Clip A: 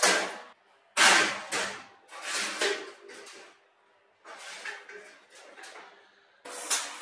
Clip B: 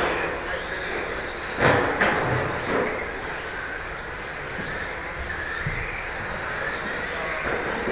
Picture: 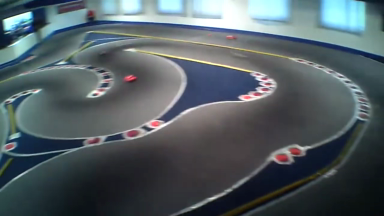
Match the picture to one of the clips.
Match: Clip B